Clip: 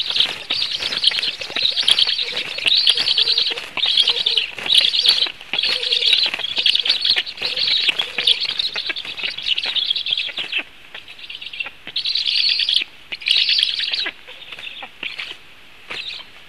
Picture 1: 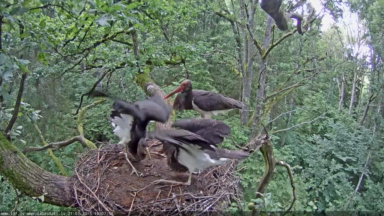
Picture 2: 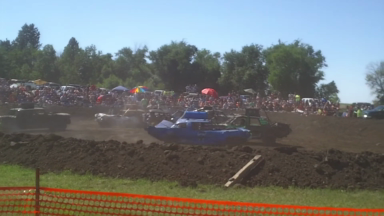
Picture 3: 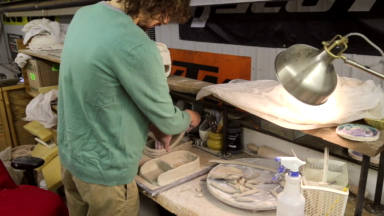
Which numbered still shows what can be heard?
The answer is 1